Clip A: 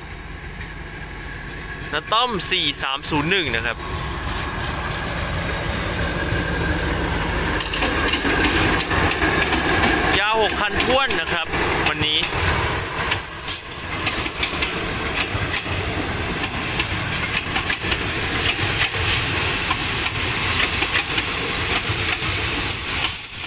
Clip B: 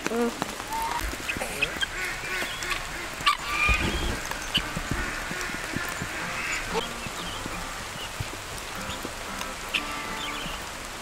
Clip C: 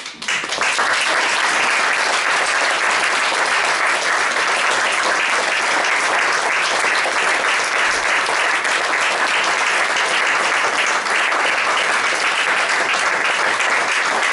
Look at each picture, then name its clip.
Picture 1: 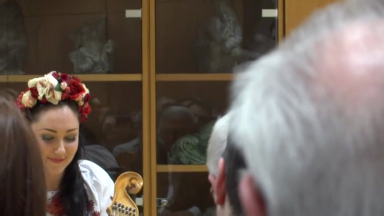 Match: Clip C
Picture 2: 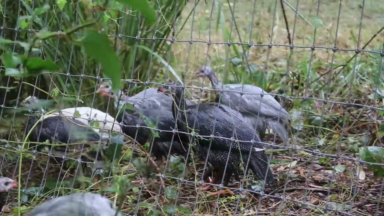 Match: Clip B